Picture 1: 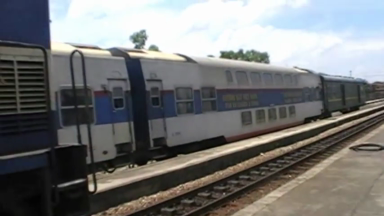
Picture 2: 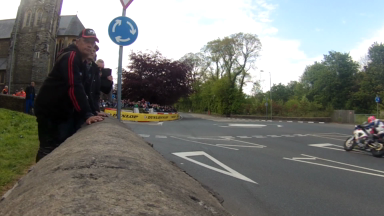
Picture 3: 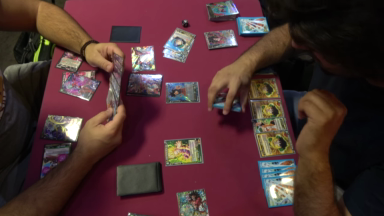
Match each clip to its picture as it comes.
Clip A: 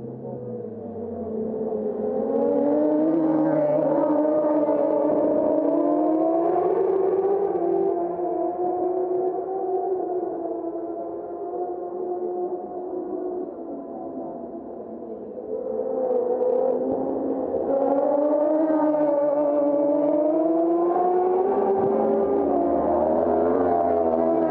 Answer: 2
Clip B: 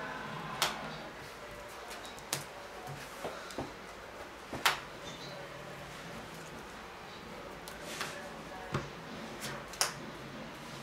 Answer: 3